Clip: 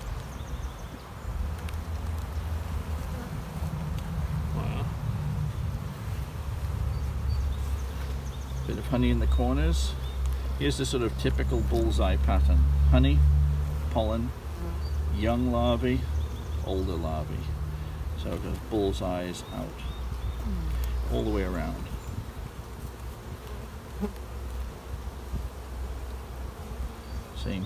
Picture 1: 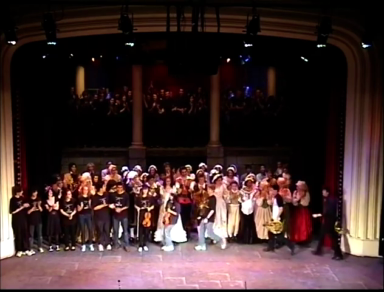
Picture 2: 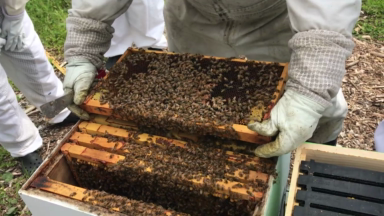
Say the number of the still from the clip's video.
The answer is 2